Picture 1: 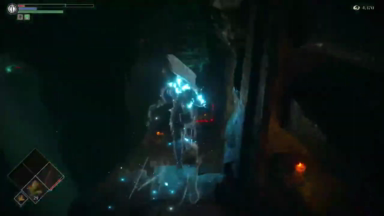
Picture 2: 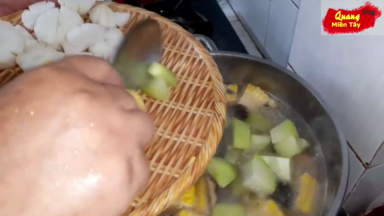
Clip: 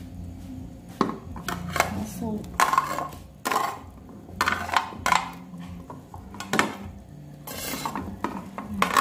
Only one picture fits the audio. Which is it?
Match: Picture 2